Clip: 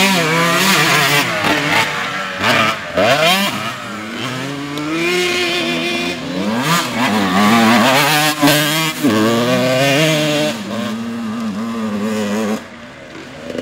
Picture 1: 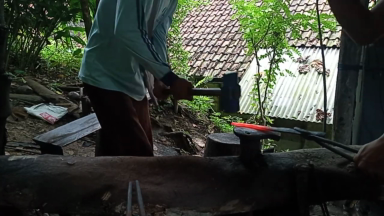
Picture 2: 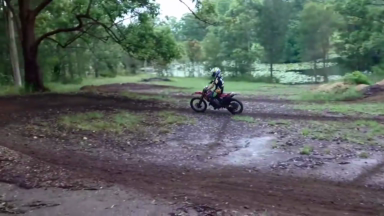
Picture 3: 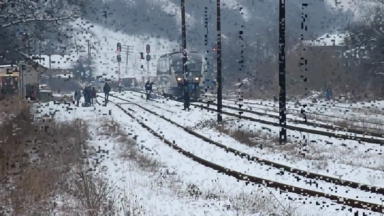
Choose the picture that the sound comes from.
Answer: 2